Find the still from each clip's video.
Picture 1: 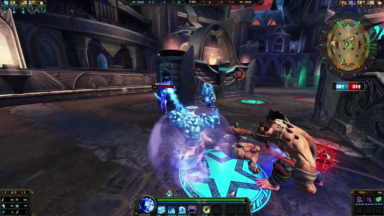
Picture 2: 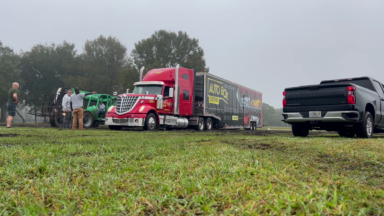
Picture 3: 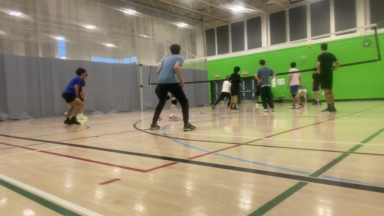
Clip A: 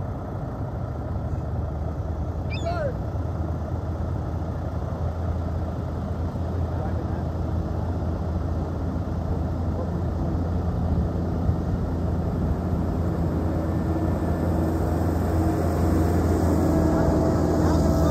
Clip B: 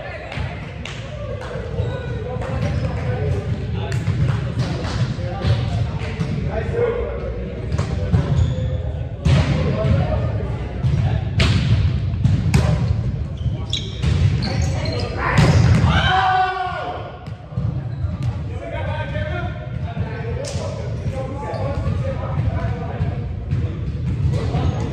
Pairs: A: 2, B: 3